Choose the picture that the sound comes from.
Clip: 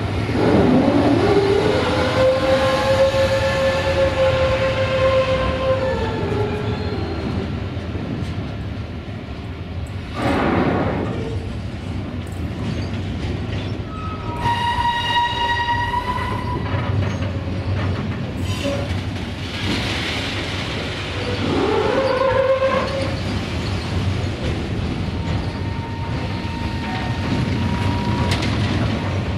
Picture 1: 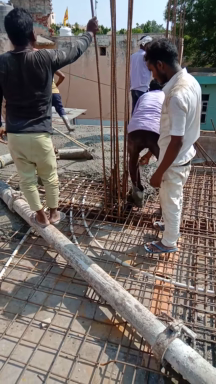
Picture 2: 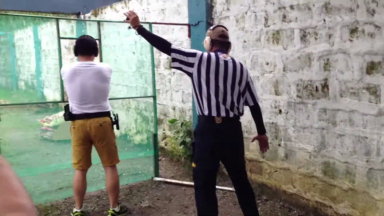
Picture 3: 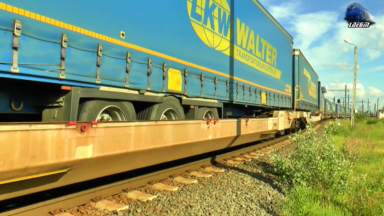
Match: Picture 3